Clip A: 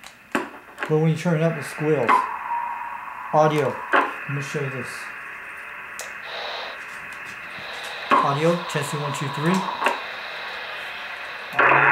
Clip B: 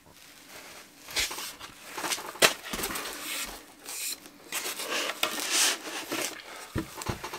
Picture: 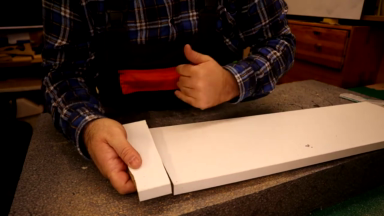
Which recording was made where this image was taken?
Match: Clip B